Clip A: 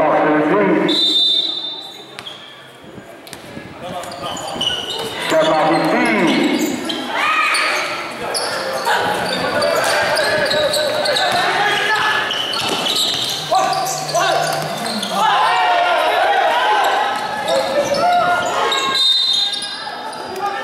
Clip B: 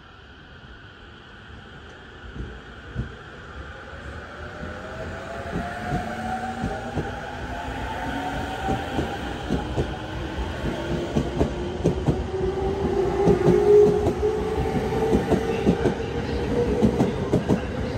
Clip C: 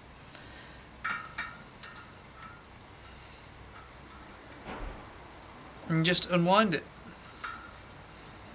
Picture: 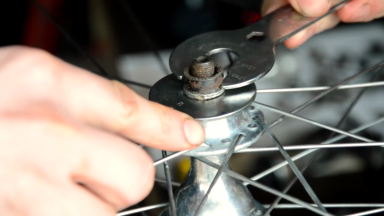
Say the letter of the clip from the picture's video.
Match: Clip C